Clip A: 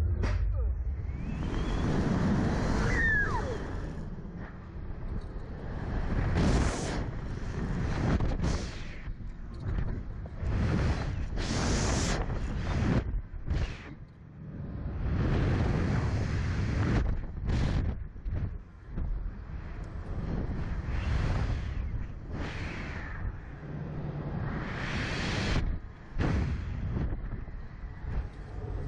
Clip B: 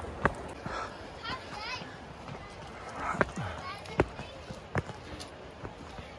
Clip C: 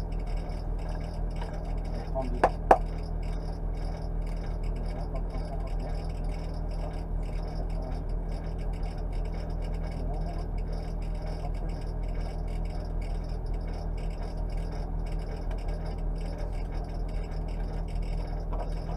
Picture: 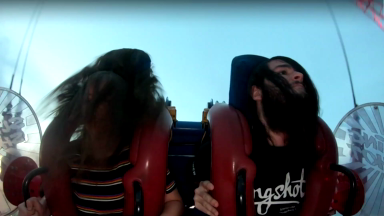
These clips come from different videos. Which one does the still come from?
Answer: A